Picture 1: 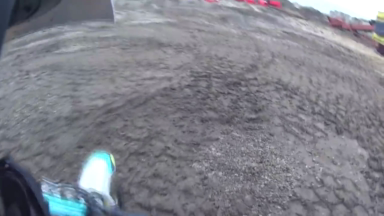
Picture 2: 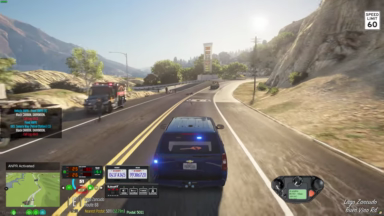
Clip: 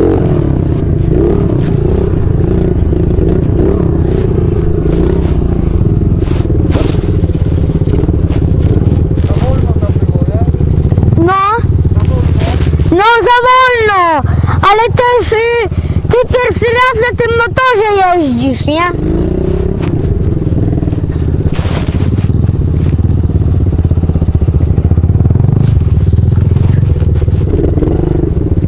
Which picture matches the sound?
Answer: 1